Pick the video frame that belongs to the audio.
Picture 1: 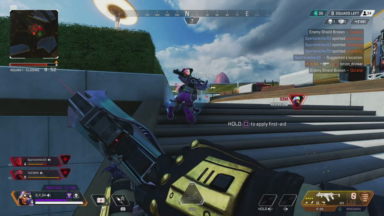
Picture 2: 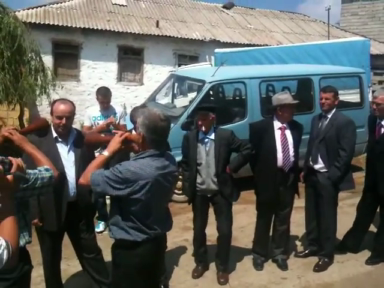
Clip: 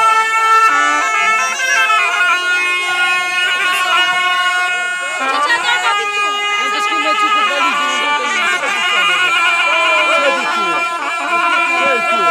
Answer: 2